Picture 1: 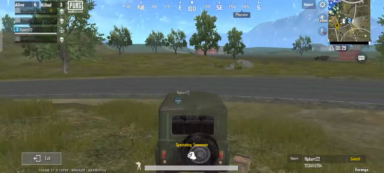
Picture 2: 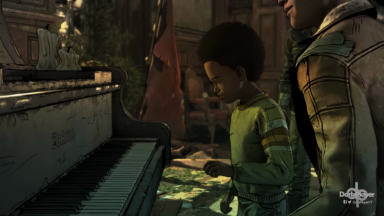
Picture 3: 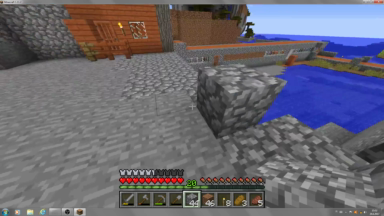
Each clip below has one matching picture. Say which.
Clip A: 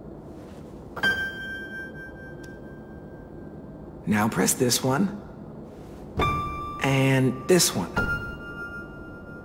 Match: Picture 2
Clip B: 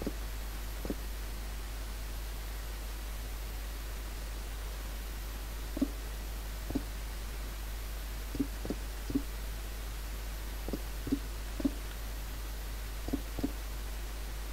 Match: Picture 3